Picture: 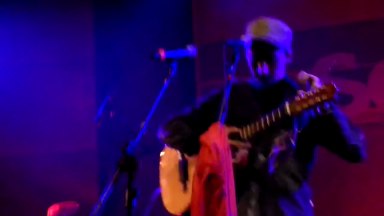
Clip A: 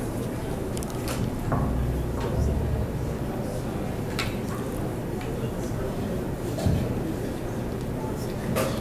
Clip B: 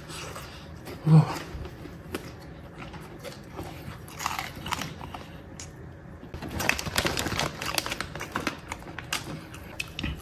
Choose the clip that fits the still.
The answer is A